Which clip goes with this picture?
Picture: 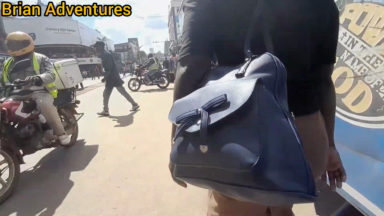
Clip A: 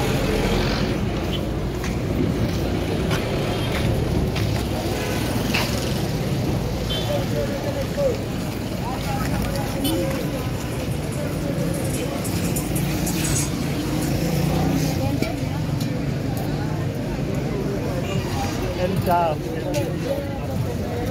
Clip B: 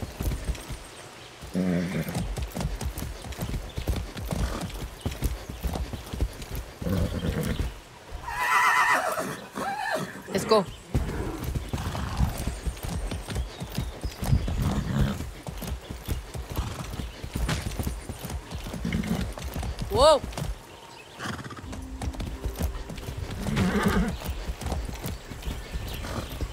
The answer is A